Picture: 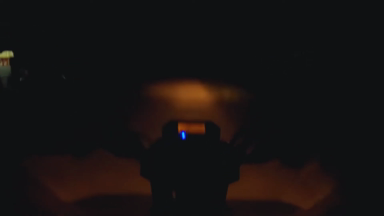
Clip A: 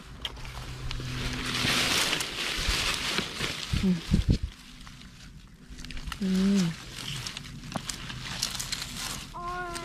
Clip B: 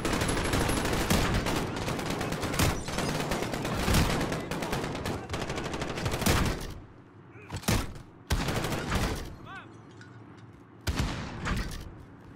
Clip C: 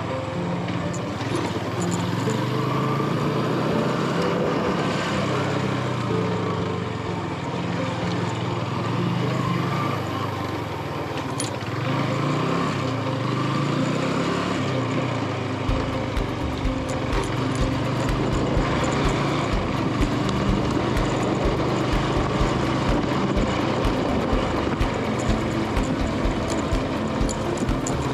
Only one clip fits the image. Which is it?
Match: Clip C